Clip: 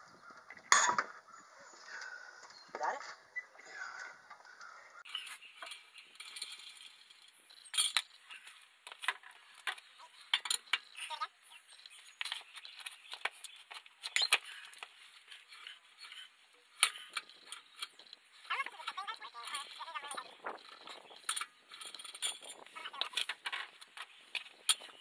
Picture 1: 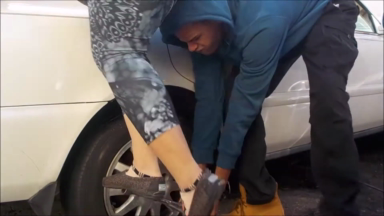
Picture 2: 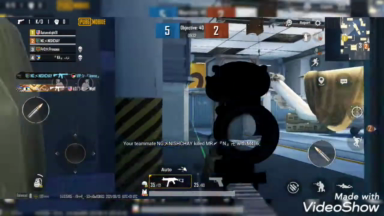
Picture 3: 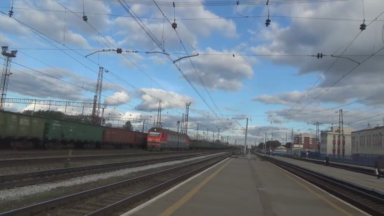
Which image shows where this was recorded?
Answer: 1